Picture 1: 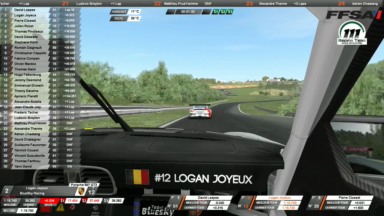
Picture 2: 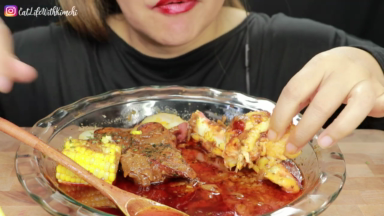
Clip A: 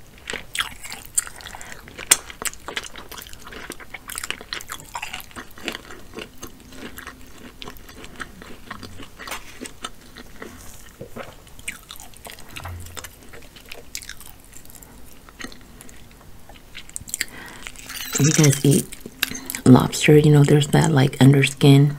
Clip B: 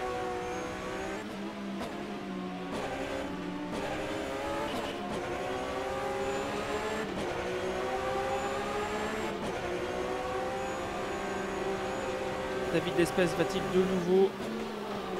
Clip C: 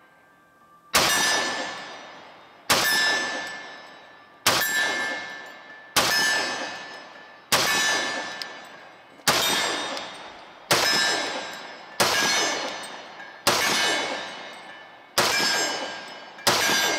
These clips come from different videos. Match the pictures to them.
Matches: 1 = B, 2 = A